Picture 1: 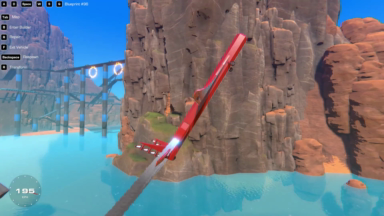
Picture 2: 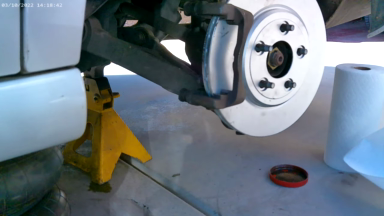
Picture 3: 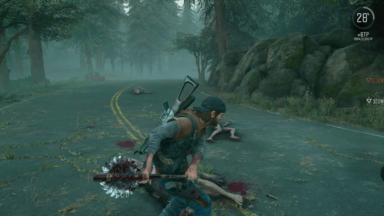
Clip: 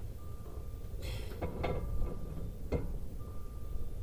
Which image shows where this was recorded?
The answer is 2